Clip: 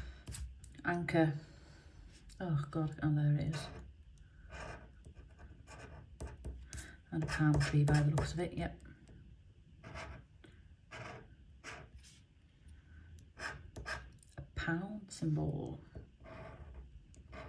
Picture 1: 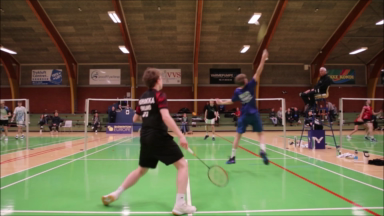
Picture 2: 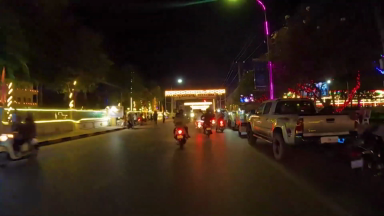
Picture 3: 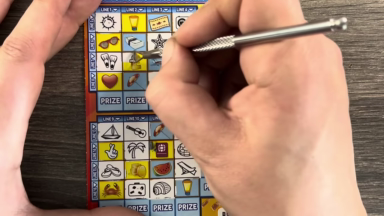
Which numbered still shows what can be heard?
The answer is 3